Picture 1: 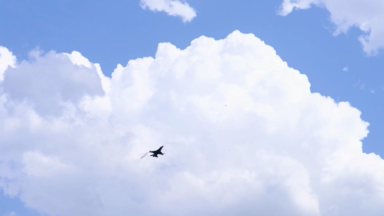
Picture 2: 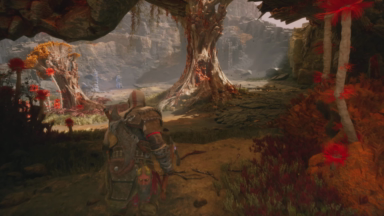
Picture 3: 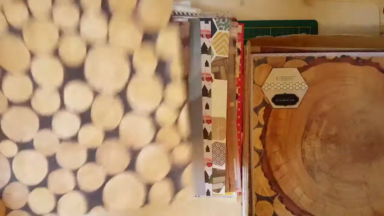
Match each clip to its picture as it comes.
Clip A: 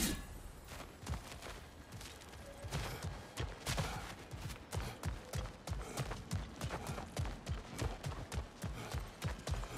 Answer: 2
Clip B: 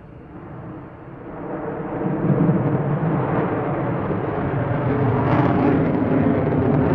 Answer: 1